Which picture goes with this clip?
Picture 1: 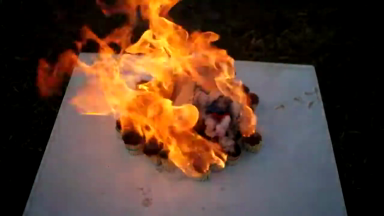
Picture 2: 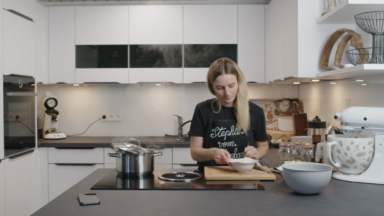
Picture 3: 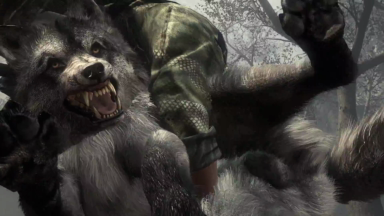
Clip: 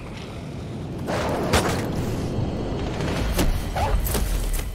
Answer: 3